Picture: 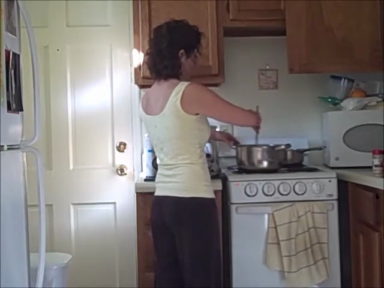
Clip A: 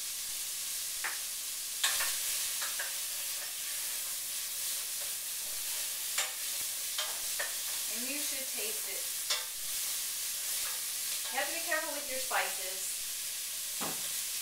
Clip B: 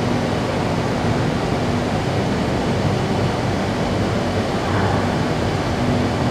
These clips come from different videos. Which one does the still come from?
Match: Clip A